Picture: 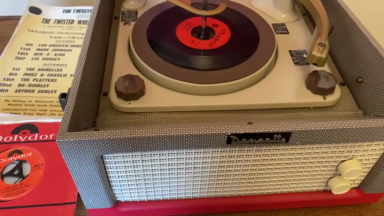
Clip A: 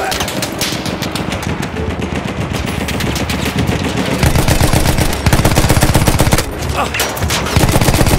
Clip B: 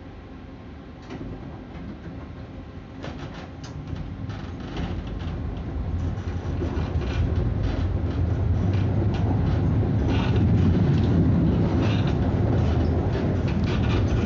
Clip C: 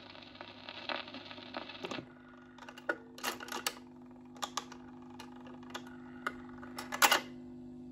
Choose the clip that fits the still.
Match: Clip C